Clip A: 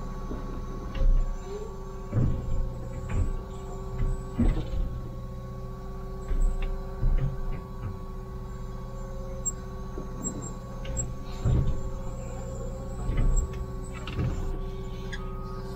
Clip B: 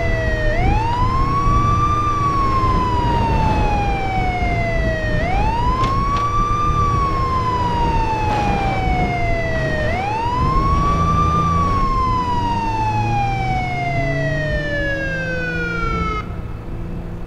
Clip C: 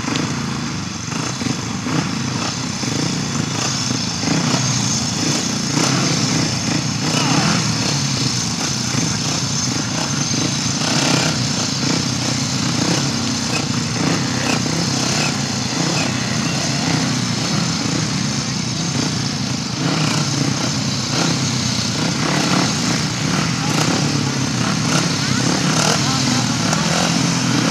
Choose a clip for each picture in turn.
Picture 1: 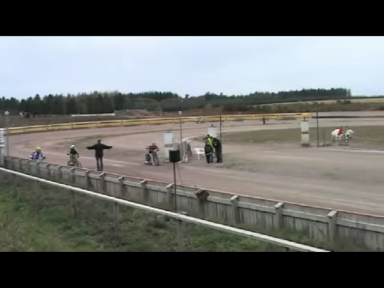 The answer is C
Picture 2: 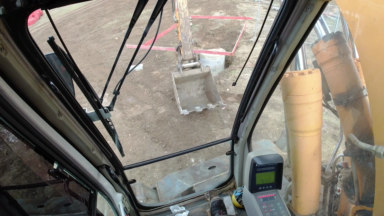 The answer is A